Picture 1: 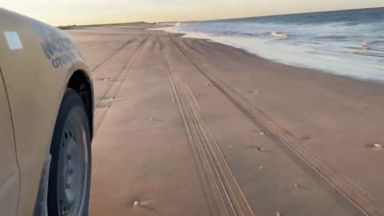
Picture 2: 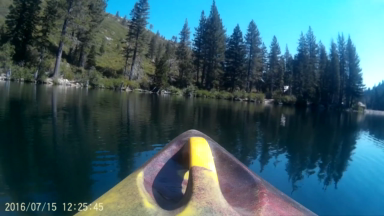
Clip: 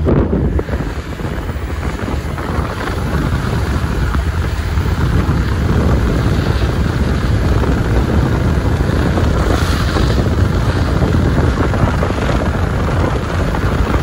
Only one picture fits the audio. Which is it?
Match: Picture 1